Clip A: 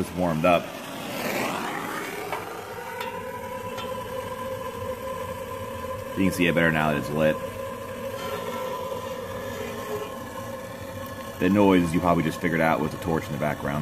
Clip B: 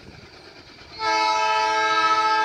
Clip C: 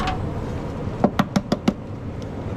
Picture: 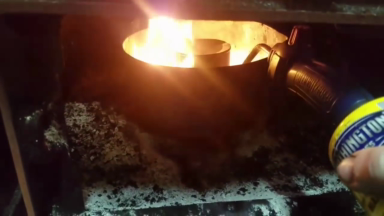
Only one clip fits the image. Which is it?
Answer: A